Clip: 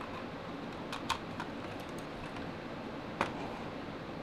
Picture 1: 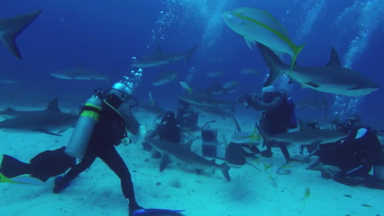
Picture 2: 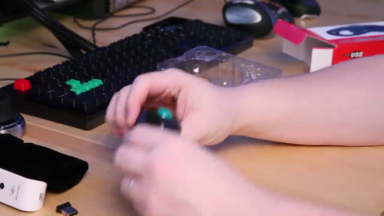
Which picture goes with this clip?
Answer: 2